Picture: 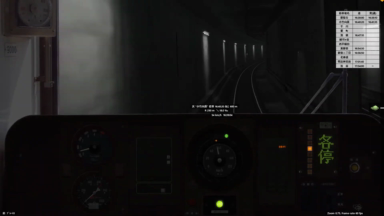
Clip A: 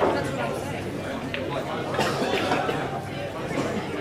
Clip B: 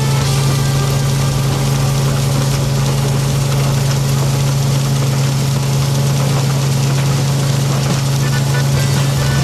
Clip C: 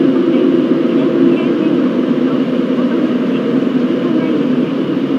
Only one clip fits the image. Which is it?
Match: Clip C